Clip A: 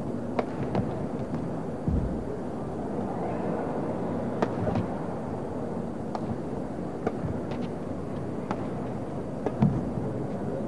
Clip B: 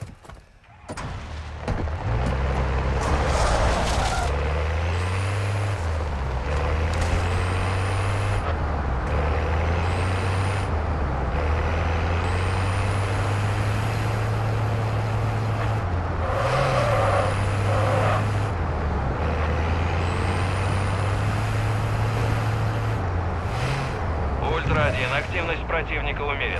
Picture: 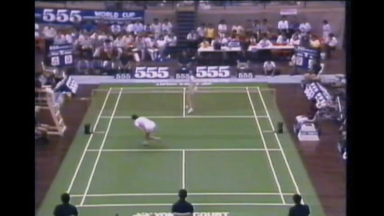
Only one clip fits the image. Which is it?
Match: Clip A